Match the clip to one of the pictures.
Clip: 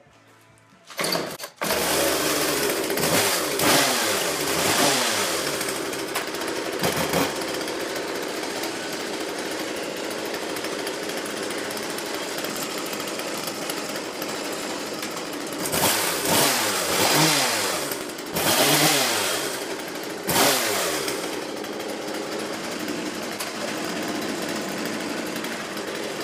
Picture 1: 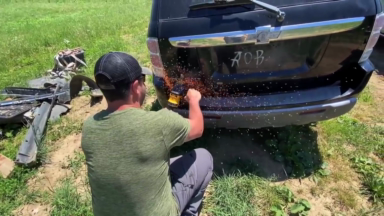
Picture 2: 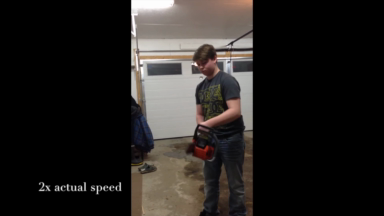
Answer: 2